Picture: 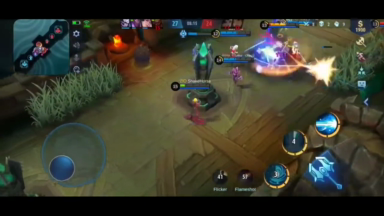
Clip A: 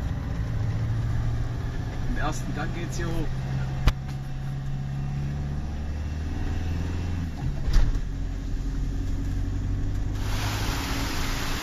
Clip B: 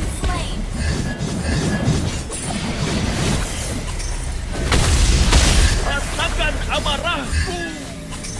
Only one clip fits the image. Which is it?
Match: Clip B